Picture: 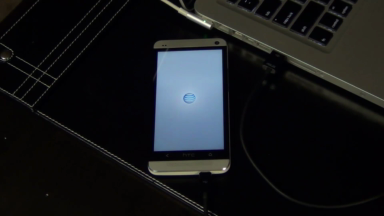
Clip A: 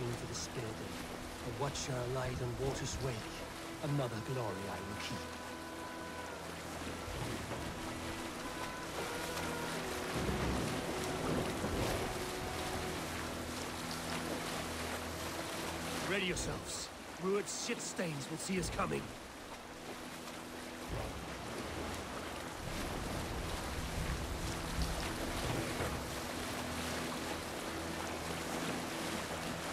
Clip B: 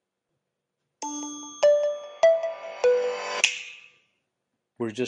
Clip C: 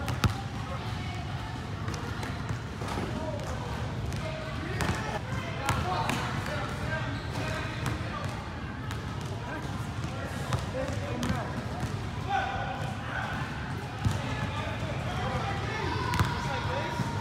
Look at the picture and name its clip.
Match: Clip B